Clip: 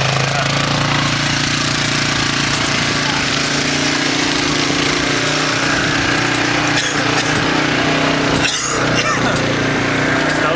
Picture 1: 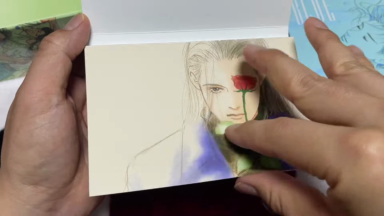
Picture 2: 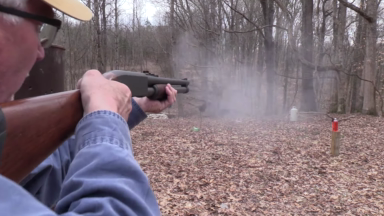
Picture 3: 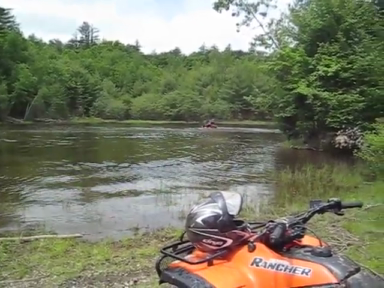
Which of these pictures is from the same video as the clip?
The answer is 3